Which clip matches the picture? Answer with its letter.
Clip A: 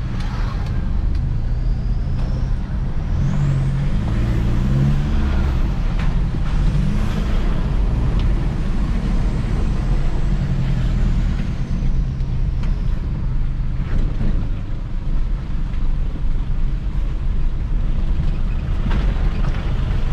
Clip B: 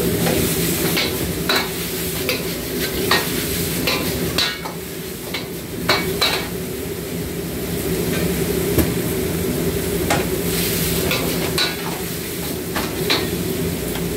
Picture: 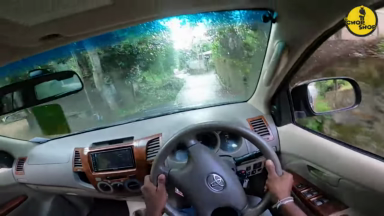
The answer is A